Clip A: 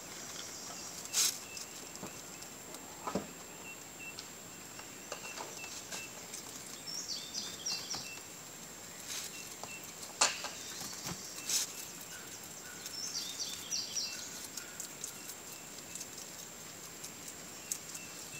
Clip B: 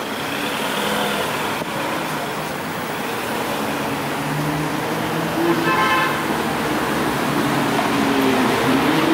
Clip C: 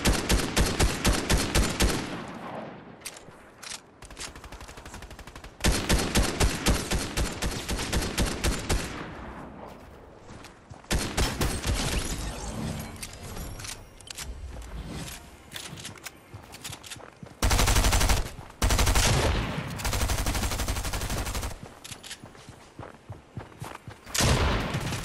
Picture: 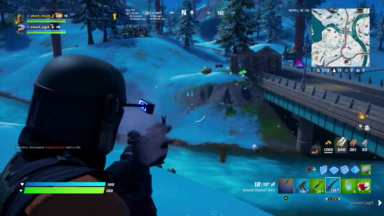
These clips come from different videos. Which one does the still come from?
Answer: C